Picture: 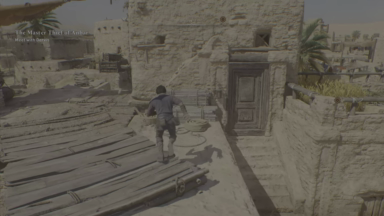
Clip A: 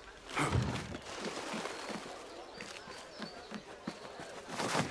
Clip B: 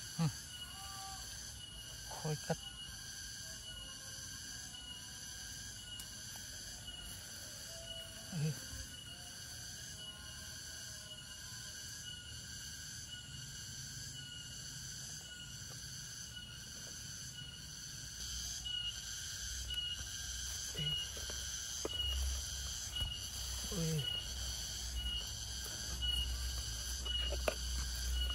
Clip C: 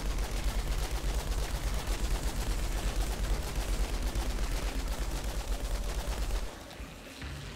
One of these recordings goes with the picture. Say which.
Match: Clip A